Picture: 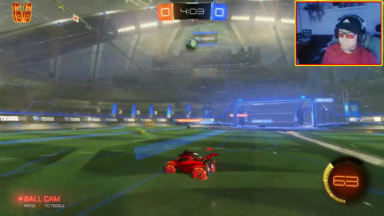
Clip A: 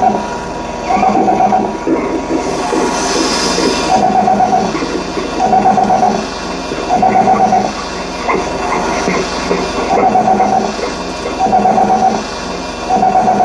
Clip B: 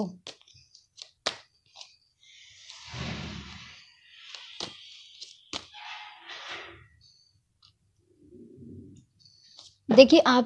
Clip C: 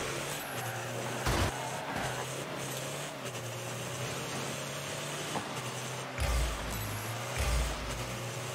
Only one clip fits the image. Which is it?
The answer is C